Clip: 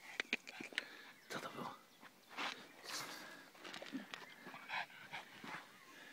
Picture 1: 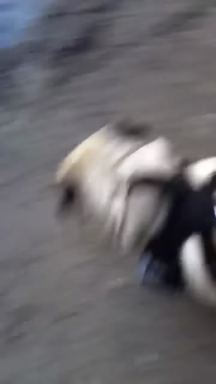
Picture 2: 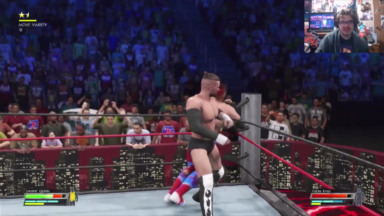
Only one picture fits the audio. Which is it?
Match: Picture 1